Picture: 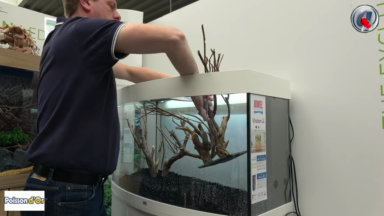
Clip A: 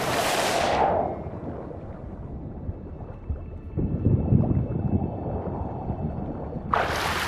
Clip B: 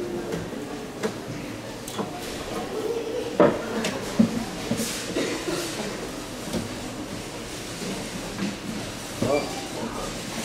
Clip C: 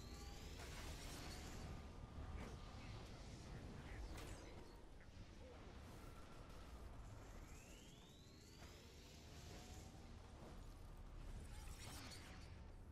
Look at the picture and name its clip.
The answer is B